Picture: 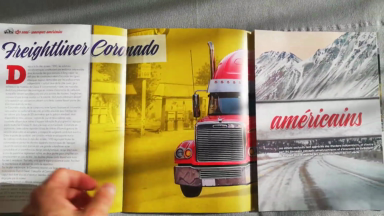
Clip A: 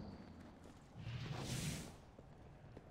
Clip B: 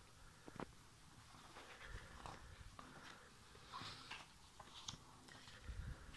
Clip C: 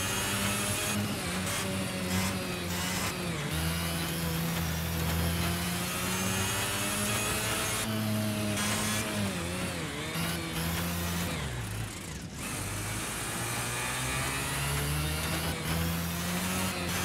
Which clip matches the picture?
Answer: B